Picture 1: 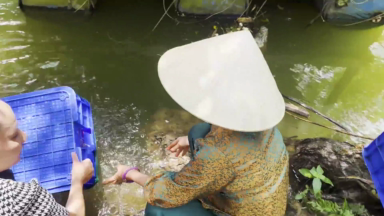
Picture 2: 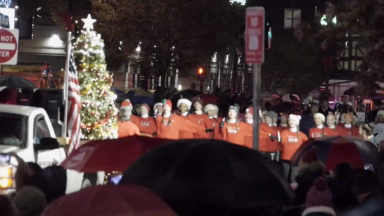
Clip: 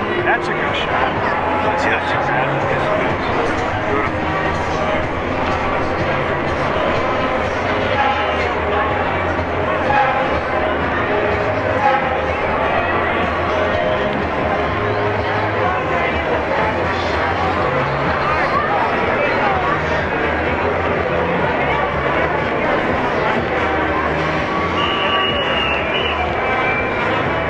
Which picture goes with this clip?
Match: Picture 2